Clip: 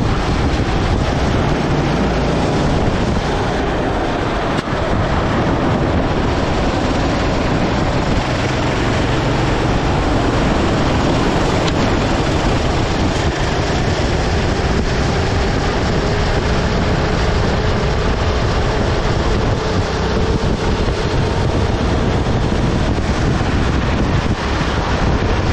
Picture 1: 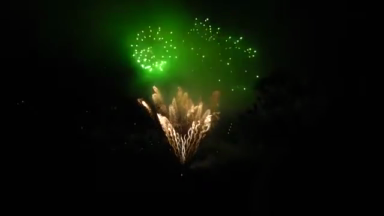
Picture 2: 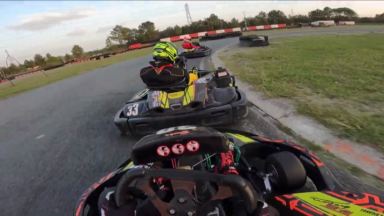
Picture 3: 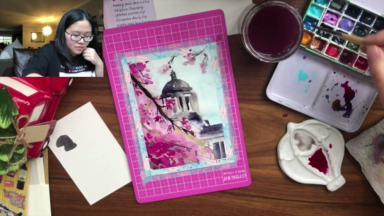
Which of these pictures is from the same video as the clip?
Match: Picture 2